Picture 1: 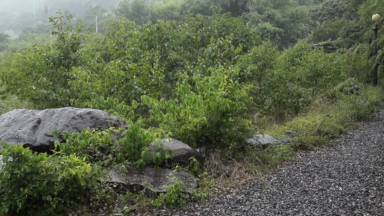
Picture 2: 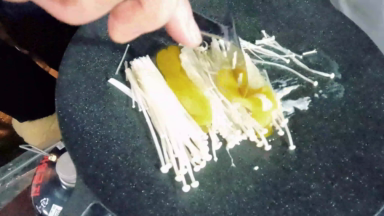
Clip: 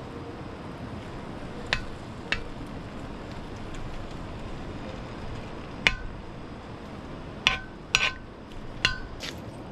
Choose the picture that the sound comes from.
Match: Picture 2